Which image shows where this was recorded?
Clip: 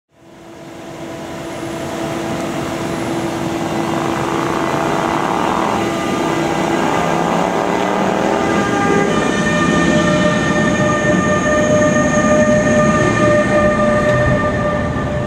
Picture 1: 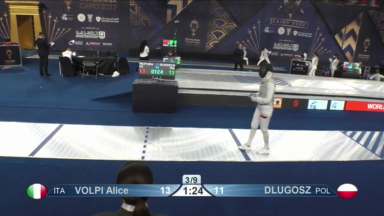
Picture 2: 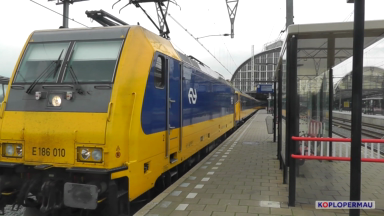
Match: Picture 2